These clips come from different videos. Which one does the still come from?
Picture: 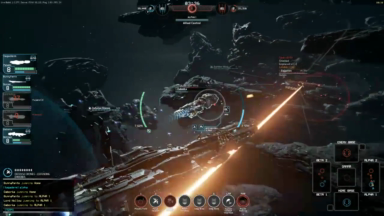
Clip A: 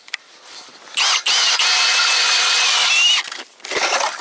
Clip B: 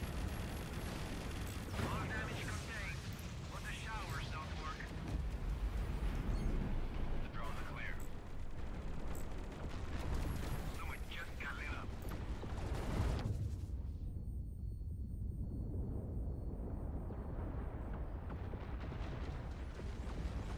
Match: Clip B